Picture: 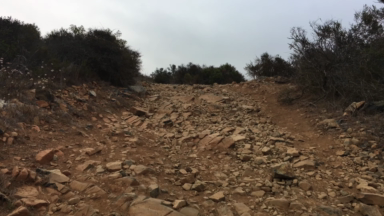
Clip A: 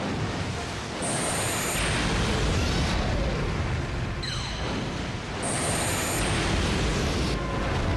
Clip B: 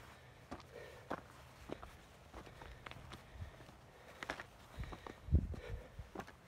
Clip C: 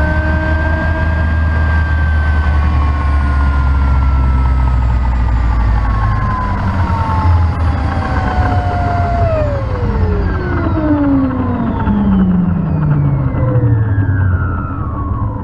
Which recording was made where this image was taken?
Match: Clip B